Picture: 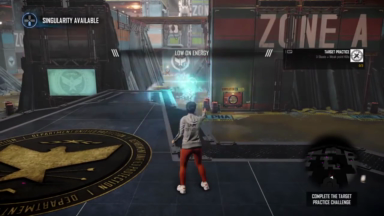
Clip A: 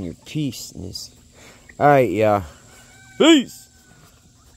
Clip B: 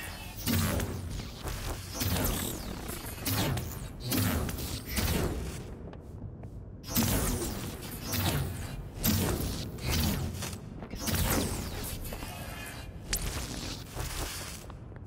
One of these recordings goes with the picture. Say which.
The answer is B